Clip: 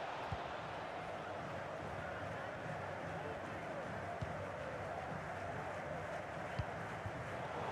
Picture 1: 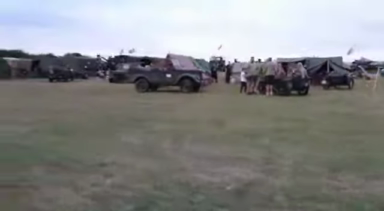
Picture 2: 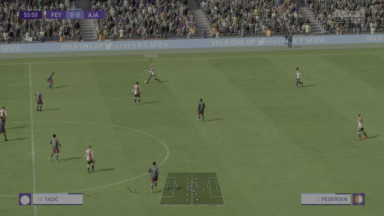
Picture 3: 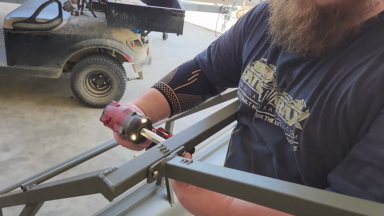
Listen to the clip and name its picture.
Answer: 2